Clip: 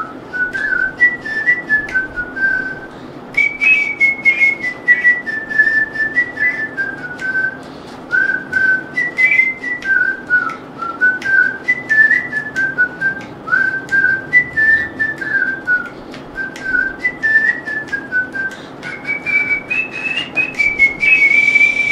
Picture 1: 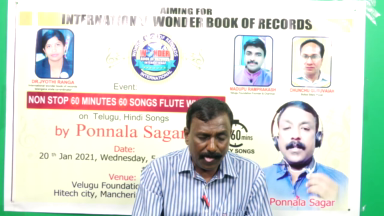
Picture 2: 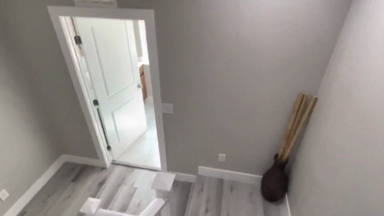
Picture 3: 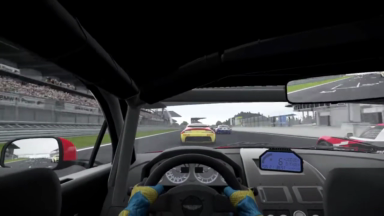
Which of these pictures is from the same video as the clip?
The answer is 1